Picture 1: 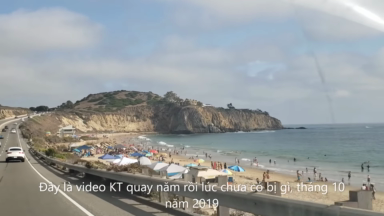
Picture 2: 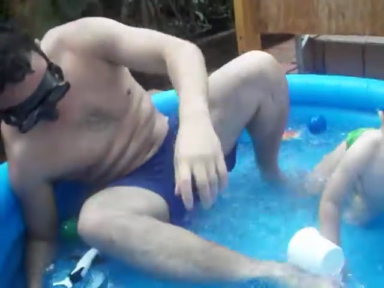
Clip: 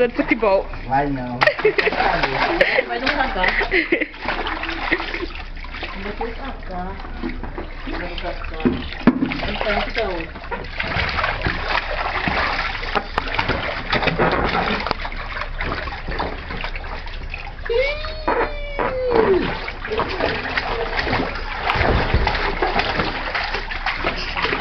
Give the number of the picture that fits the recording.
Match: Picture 2